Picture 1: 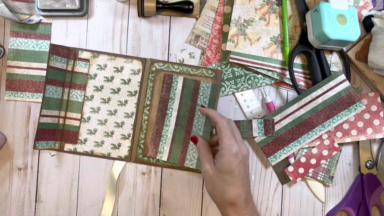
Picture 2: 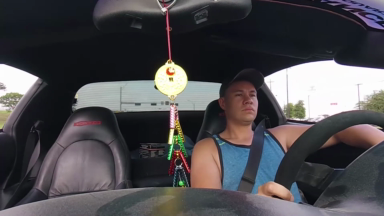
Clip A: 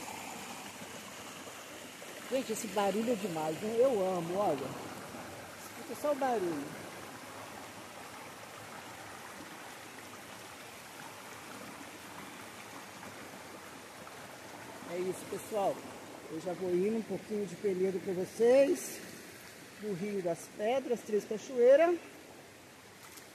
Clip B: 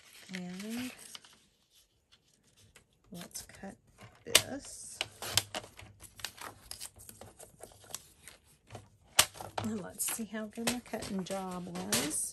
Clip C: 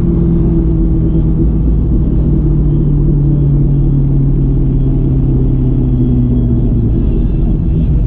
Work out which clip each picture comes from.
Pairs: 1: B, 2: C